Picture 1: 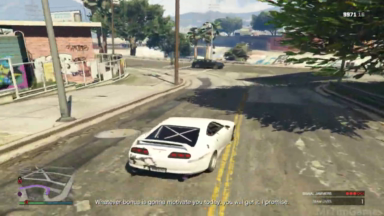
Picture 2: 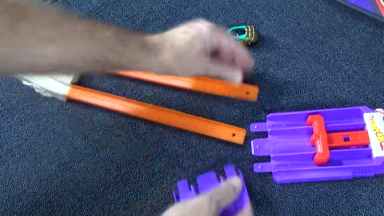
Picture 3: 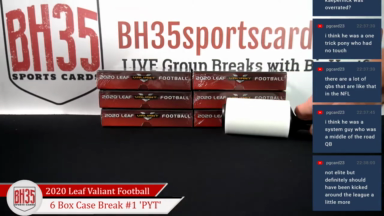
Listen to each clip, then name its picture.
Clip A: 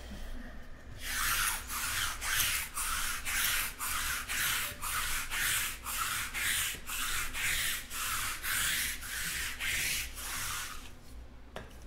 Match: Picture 3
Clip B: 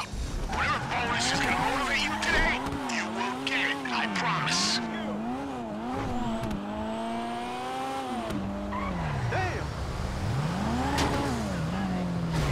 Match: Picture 1